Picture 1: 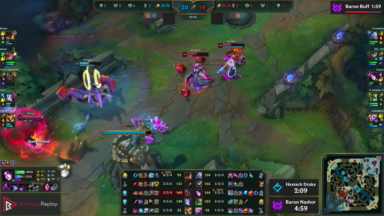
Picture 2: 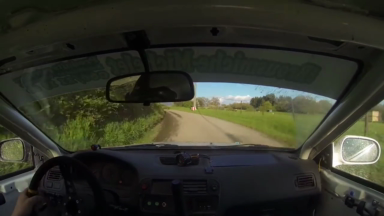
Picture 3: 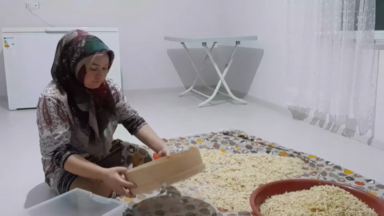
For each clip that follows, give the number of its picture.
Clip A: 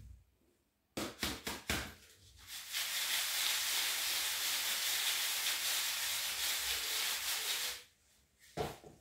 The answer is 3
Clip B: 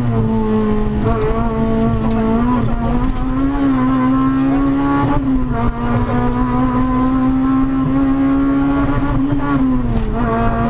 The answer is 2